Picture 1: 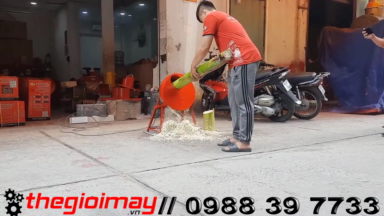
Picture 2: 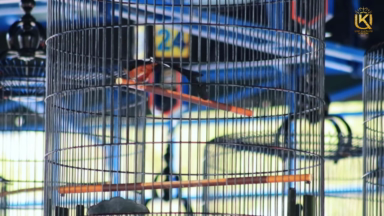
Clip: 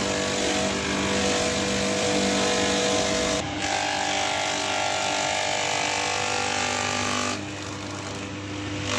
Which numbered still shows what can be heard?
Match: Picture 1